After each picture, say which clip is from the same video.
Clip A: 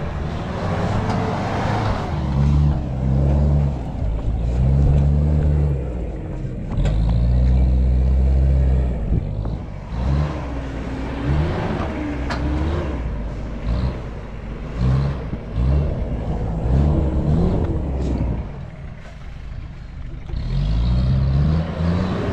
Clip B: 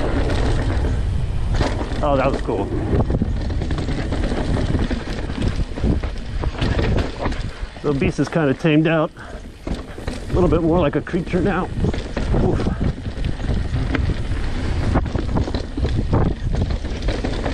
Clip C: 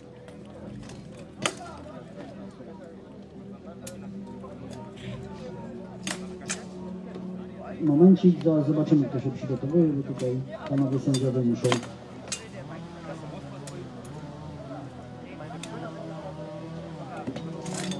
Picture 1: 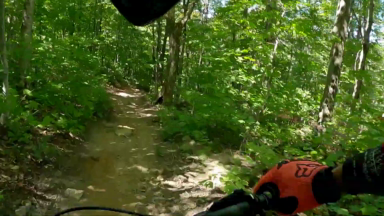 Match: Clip B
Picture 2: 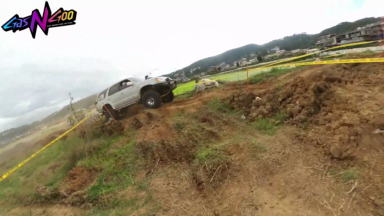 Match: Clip A